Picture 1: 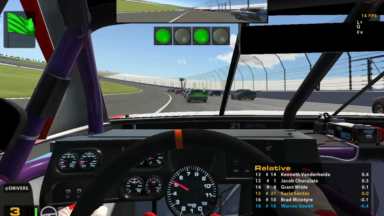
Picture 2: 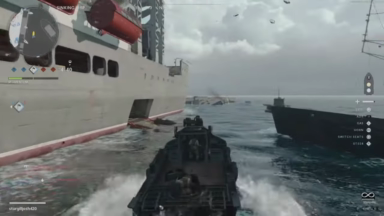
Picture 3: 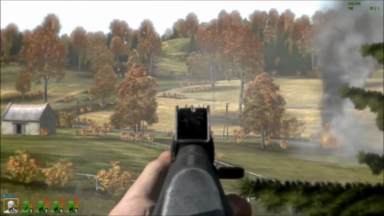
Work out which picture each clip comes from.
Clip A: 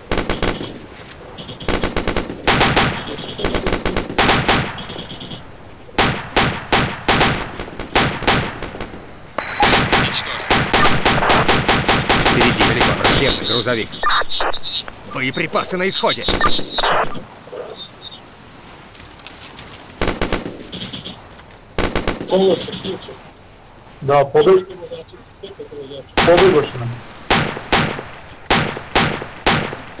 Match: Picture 3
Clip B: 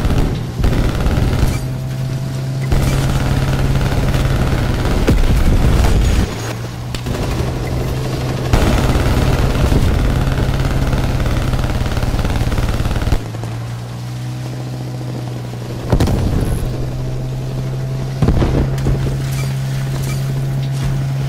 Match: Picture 2